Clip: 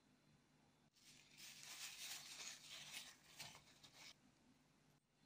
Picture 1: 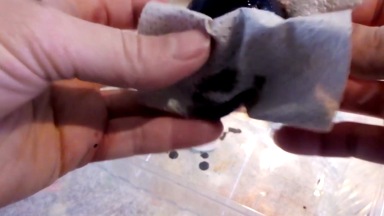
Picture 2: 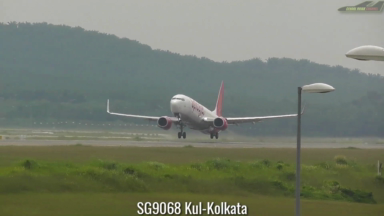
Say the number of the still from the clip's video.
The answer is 1